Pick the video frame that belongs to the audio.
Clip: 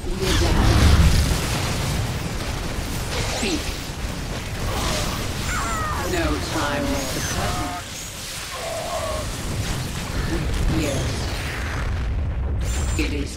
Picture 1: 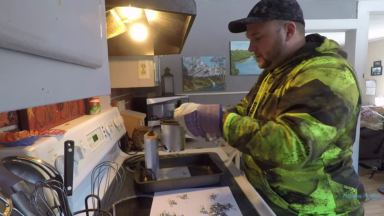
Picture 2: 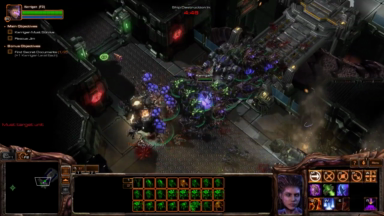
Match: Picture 2